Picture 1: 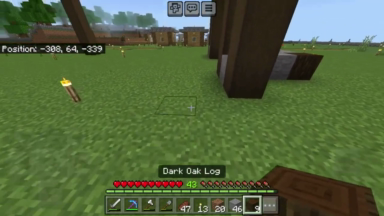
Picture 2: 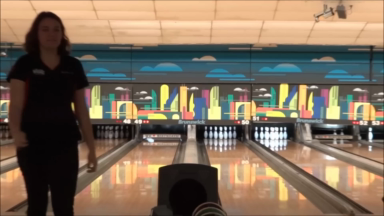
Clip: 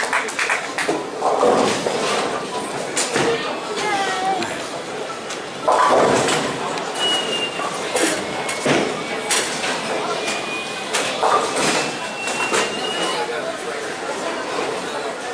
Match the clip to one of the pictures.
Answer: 2